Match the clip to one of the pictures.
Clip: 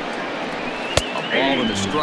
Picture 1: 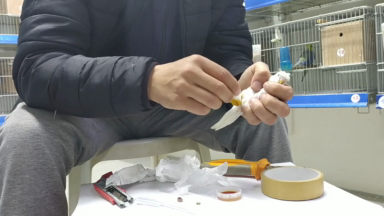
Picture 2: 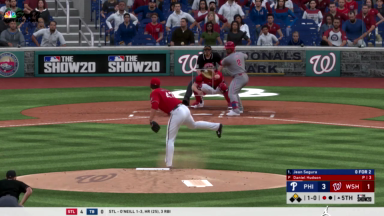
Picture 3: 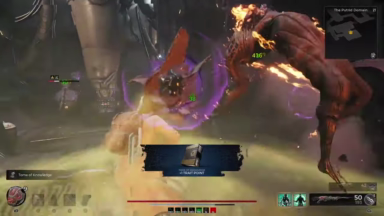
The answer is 2